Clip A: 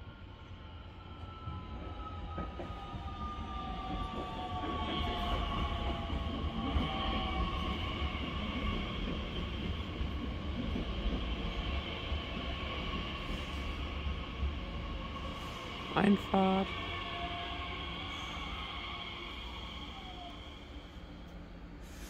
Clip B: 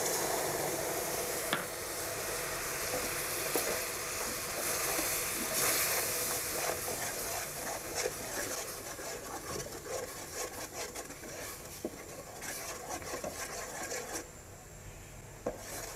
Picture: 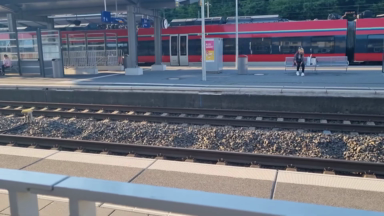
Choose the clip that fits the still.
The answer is A